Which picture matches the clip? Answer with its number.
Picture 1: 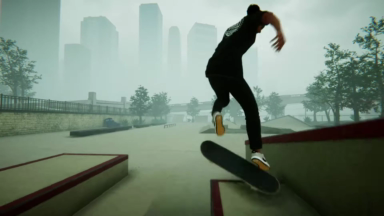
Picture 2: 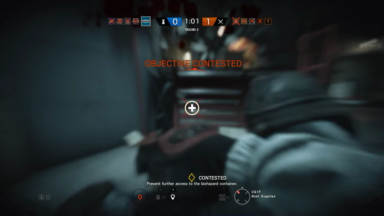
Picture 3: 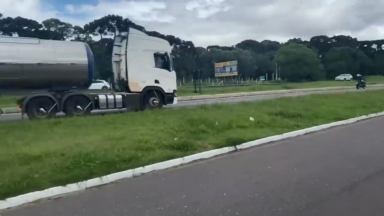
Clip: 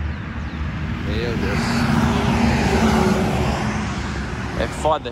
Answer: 3